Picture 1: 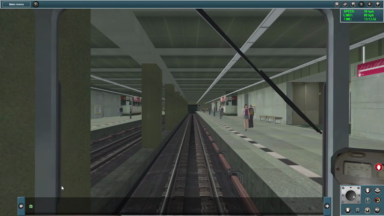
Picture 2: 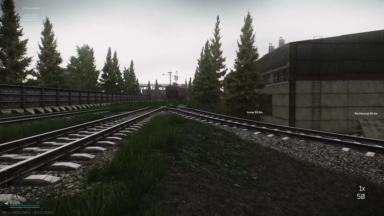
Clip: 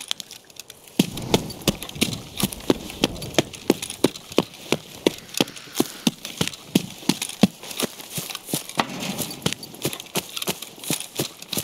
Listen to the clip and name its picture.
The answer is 2